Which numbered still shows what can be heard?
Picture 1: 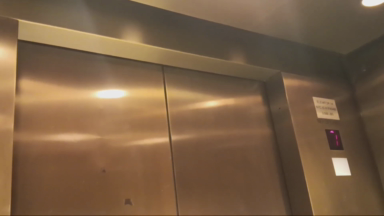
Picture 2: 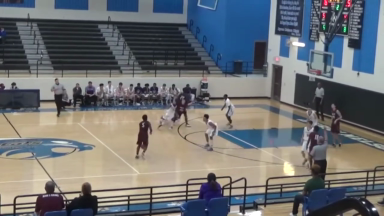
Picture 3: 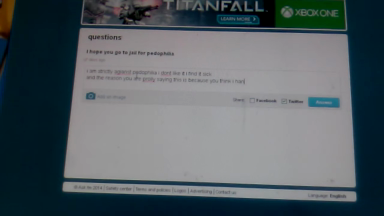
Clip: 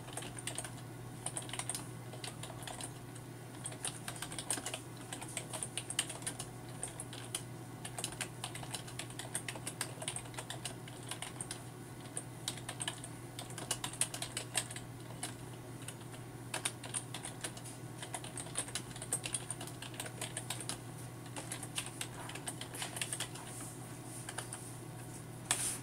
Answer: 3